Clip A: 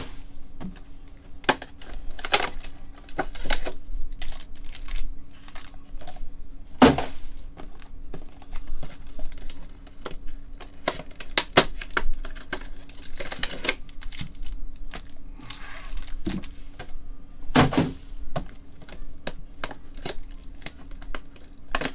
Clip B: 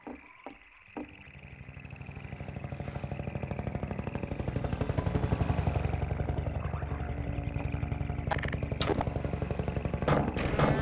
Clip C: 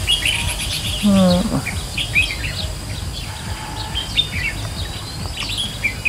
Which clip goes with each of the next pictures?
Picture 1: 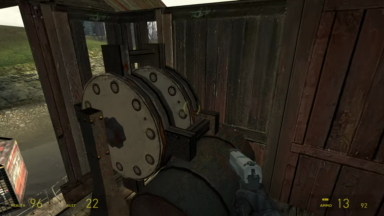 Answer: B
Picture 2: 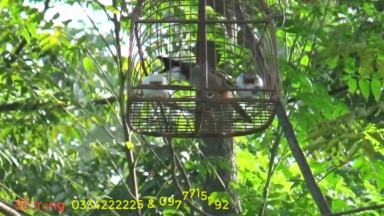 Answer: C